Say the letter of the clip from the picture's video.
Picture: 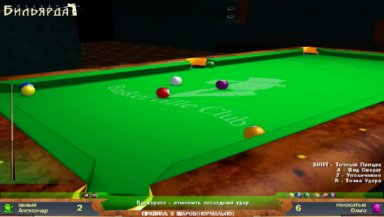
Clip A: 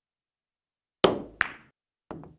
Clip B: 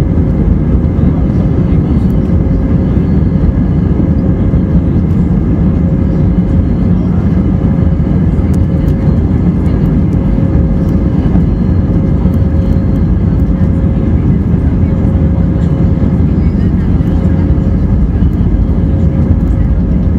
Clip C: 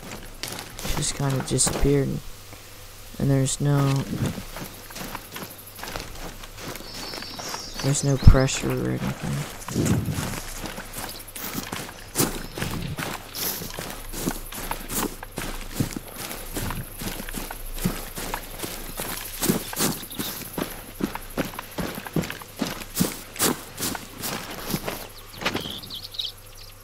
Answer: A